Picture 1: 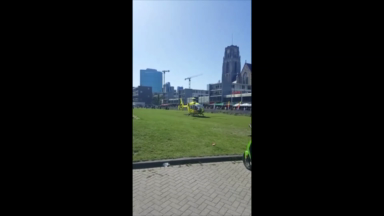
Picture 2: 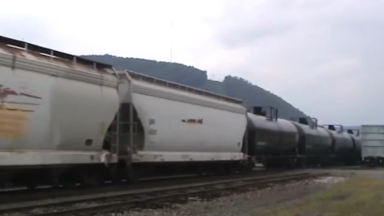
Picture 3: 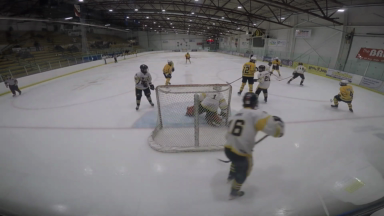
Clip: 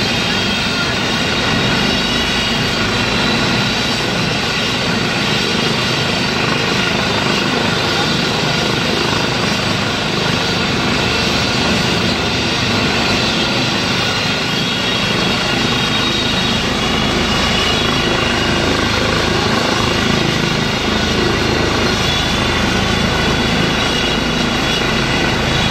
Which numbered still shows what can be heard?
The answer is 1